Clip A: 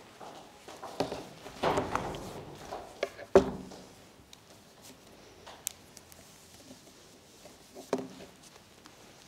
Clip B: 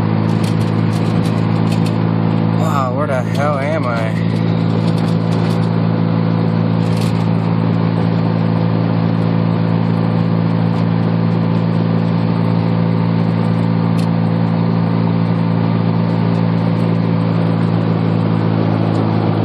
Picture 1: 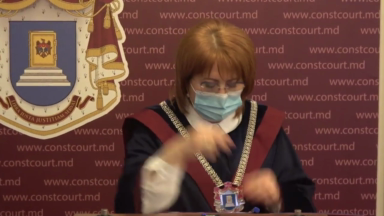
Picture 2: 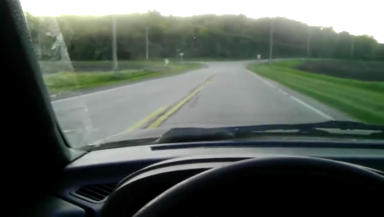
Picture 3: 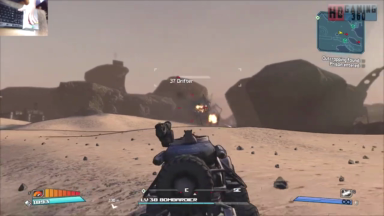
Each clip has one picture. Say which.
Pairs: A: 1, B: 2